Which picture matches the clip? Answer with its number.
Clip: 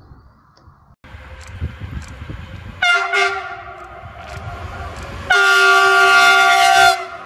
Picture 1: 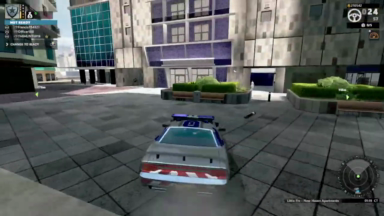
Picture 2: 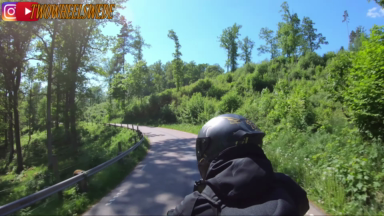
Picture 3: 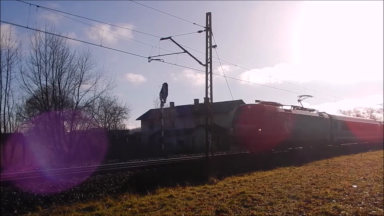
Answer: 3